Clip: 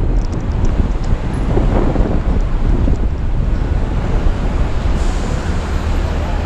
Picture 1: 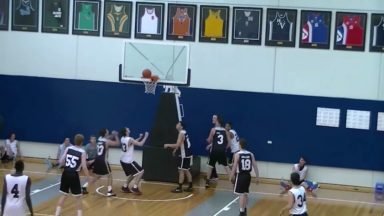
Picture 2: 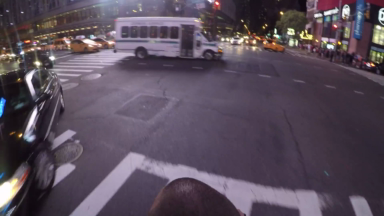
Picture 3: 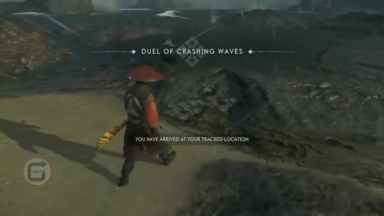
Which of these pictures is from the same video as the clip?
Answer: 2